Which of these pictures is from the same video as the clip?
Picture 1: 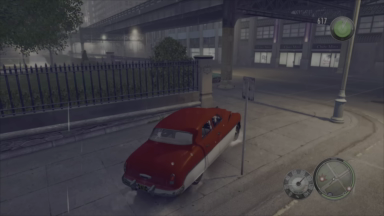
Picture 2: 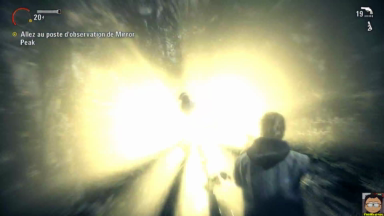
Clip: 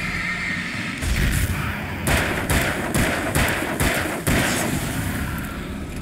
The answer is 2